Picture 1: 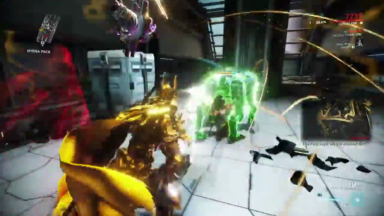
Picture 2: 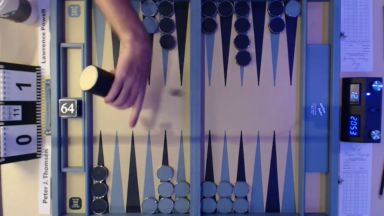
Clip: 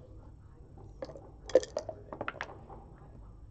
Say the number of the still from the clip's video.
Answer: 2